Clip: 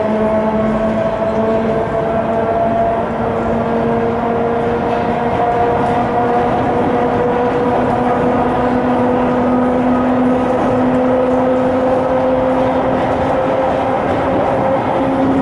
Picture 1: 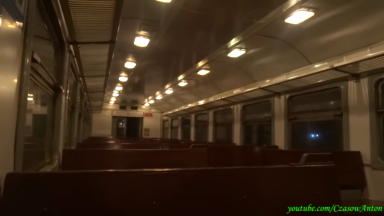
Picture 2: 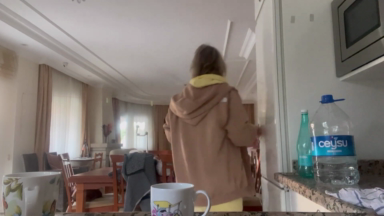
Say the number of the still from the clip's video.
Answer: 1